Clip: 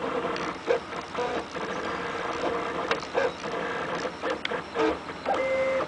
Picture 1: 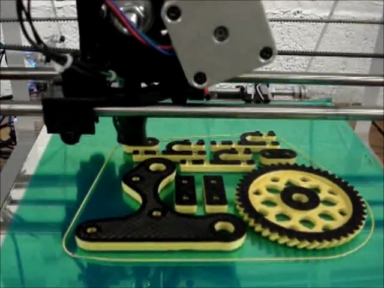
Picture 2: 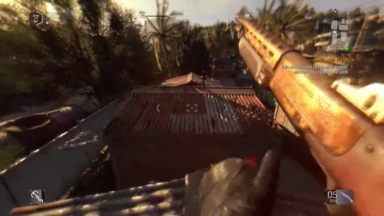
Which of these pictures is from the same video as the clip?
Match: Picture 1